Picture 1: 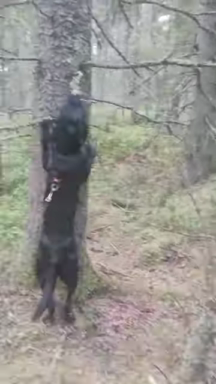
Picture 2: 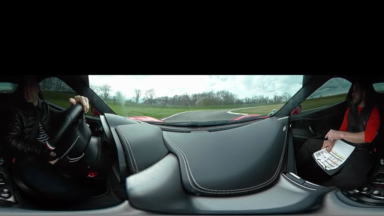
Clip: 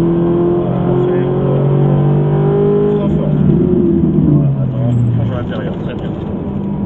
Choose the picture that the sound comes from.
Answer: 2